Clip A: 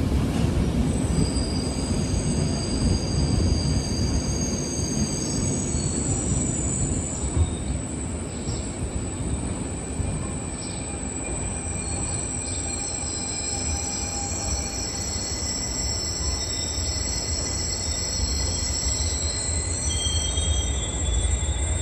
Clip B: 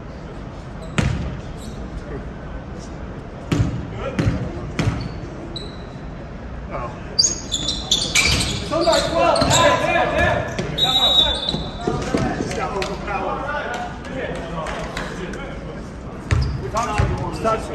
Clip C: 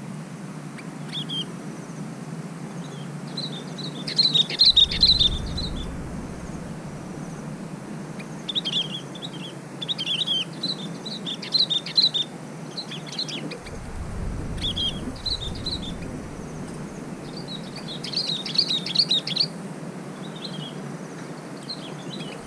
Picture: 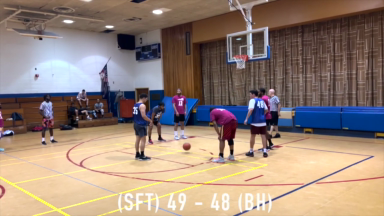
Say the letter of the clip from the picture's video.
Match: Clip B